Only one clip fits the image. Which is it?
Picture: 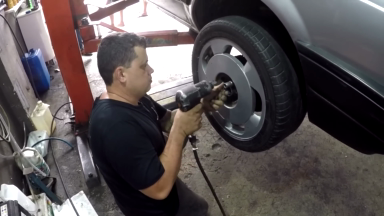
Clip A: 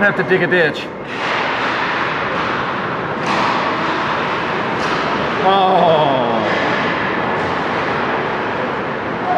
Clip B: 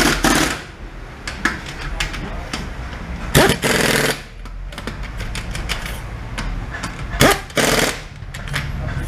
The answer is B